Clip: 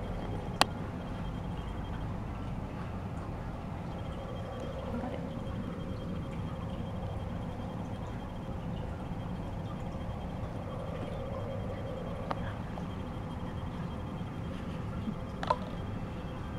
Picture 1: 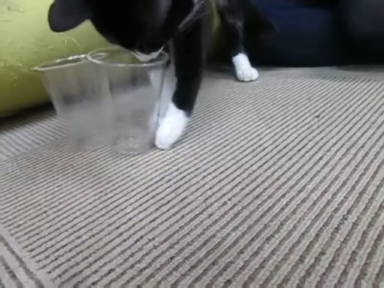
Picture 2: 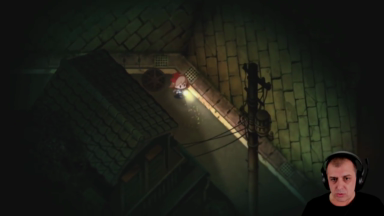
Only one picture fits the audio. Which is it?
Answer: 1